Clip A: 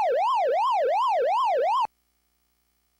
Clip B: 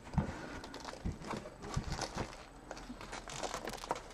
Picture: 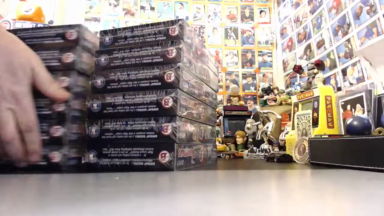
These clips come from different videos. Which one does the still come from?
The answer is B